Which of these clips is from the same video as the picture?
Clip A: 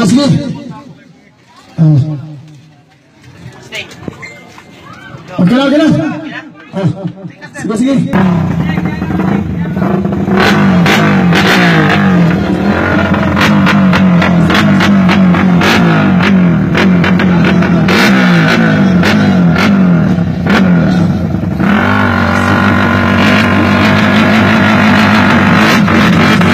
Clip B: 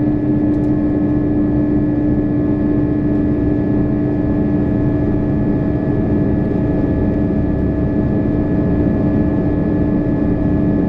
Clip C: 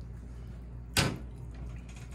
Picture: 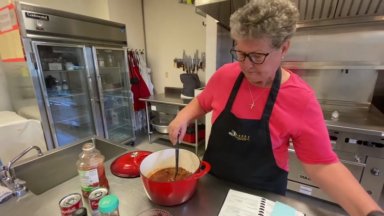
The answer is C